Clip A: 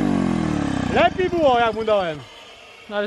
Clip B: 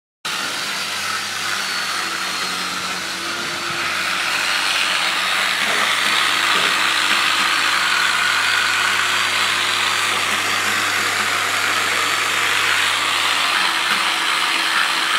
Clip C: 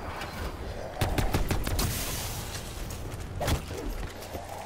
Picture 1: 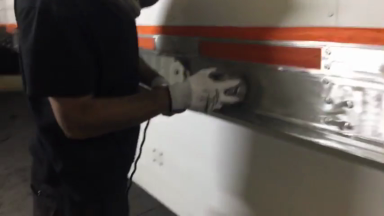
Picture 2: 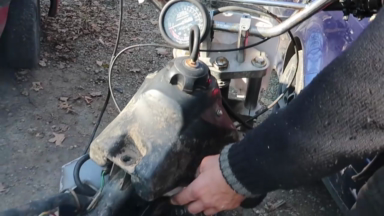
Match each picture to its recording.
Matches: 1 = B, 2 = A